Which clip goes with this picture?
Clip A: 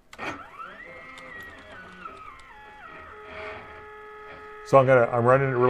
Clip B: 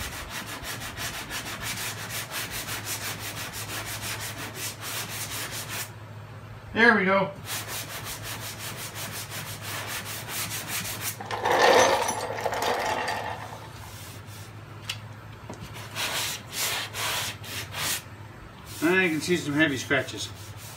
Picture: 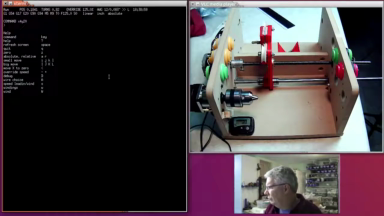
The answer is A